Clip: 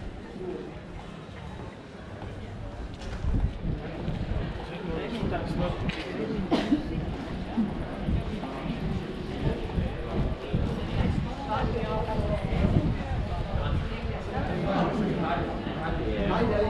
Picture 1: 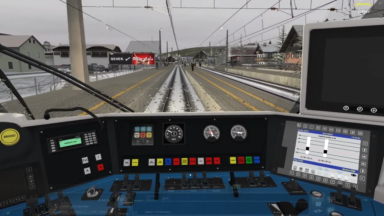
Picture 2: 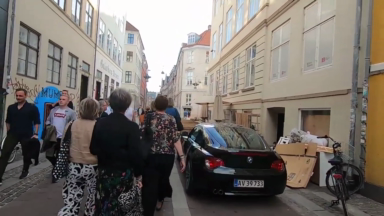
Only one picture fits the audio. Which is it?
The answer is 2